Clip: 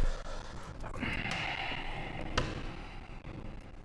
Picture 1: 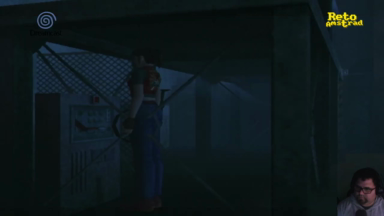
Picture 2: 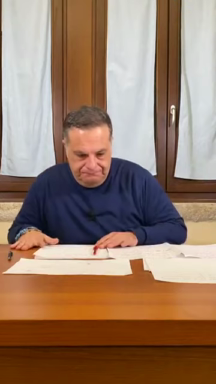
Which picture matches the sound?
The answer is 2